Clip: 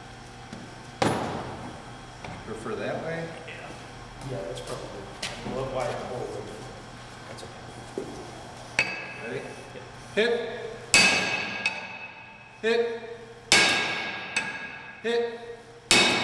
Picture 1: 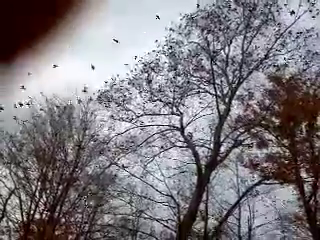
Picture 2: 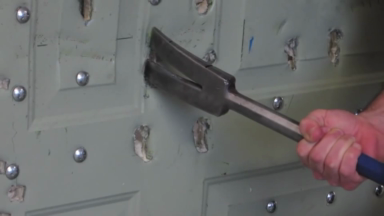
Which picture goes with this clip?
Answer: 2